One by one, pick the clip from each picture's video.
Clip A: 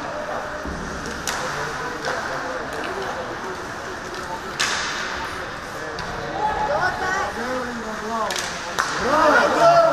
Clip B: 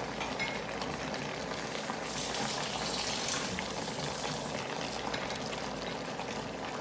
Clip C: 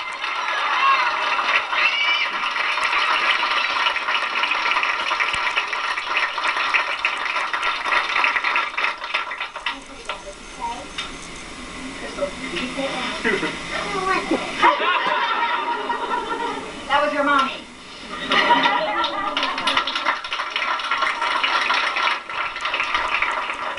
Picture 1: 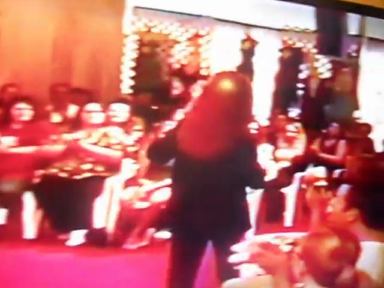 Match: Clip C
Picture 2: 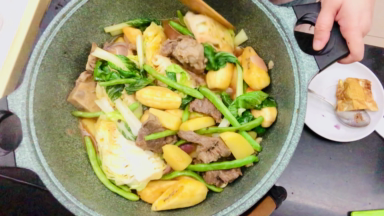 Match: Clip B